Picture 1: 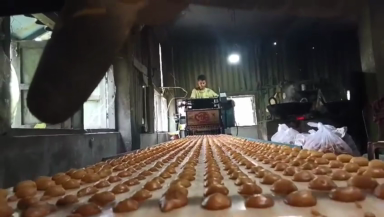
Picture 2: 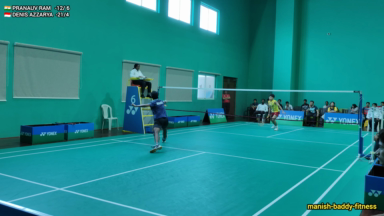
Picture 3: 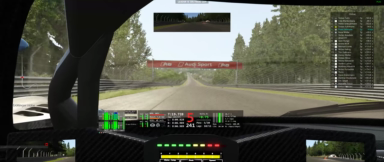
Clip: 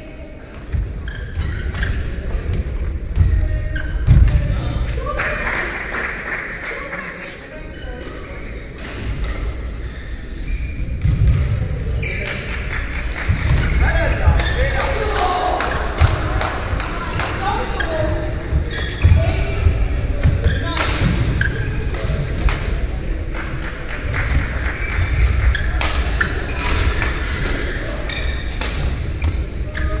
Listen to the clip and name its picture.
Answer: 2